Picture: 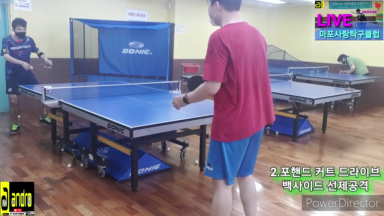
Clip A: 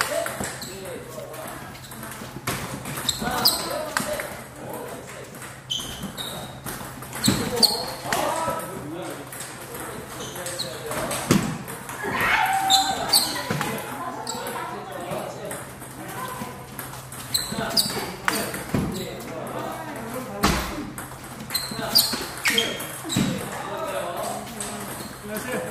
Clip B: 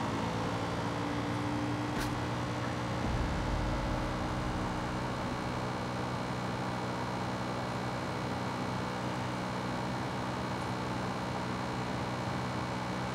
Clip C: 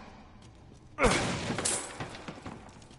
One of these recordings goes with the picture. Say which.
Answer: A